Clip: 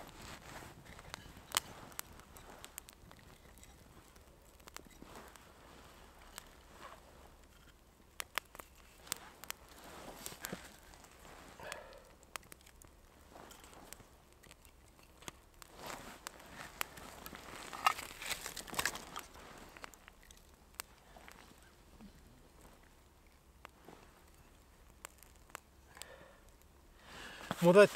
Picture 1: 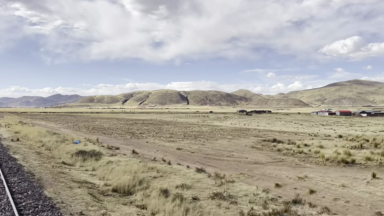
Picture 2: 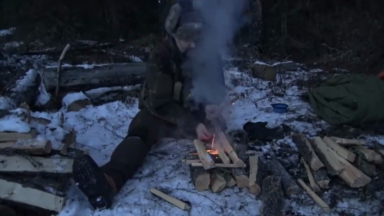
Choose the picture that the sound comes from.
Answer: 2